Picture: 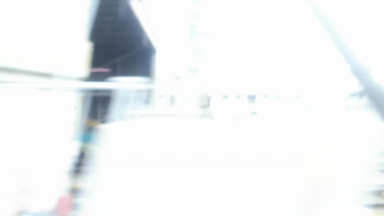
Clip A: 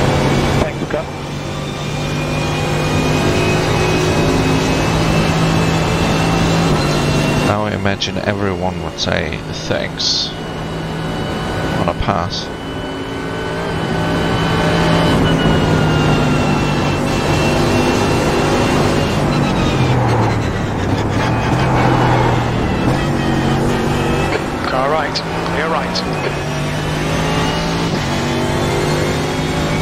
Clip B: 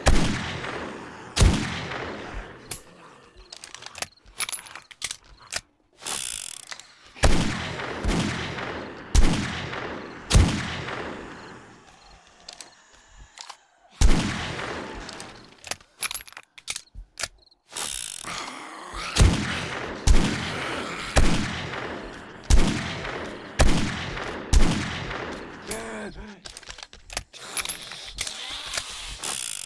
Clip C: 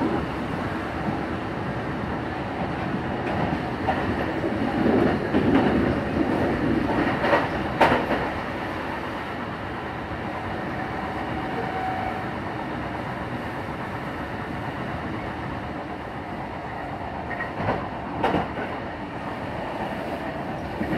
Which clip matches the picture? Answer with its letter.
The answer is C